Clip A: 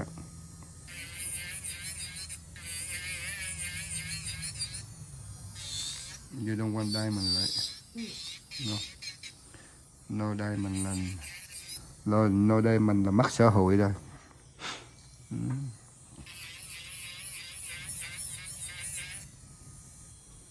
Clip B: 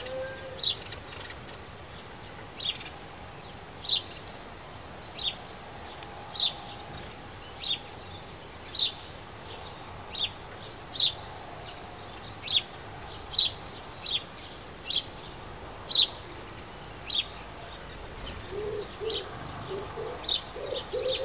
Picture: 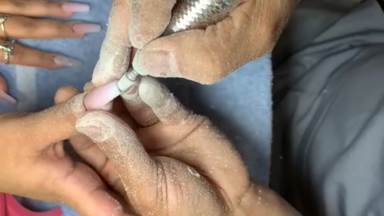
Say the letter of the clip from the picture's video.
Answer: A